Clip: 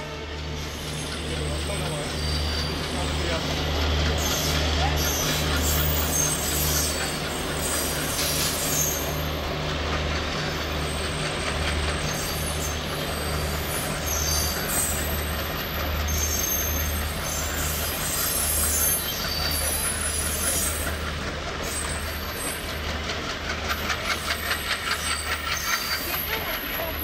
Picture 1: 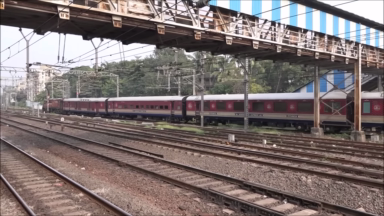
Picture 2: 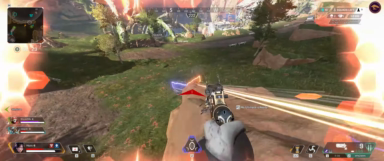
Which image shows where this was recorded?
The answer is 1